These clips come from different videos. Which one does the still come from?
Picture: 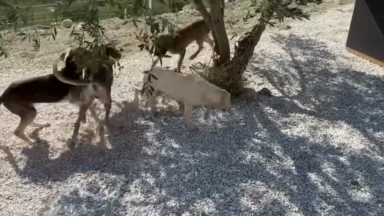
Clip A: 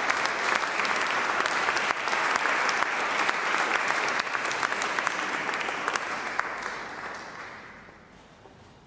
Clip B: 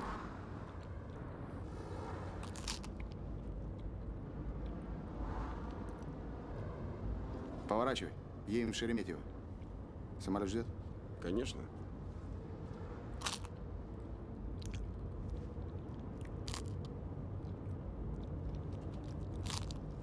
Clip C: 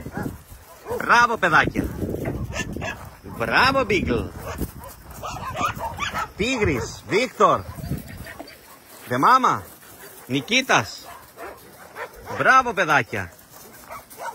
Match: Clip C